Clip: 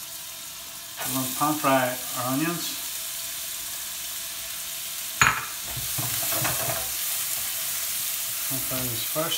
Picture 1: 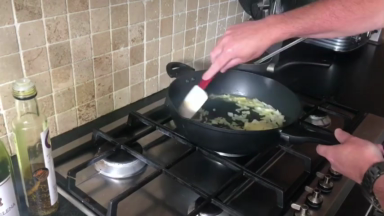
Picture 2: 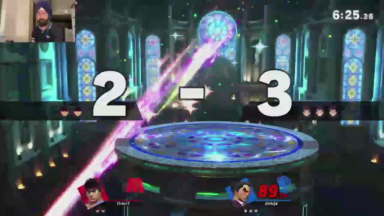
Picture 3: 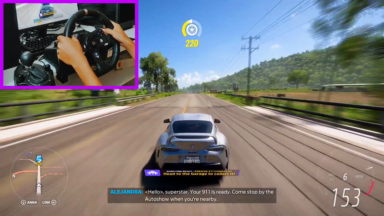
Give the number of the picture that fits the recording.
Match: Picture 1